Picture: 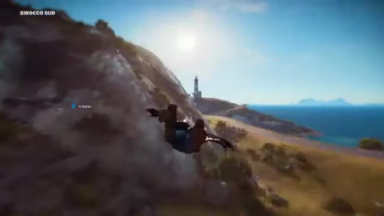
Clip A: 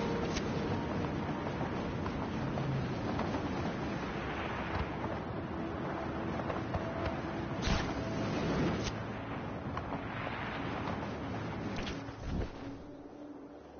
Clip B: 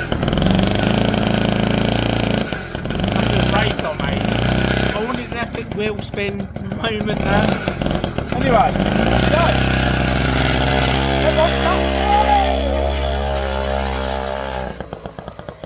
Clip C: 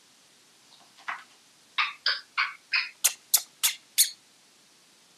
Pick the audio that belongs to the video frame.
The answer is A